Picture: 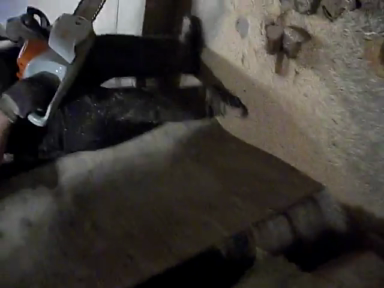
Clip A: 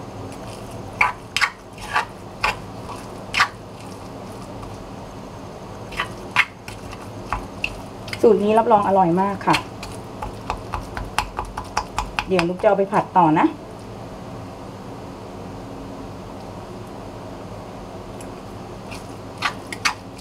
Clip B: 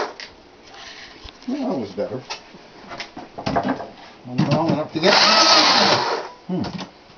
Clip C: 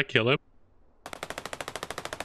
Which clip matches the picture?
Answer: B